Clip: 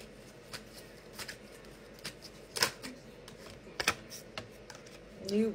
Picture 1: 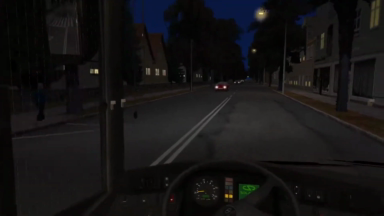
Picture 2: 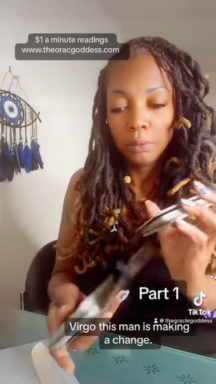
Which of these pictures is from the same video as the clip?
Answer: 2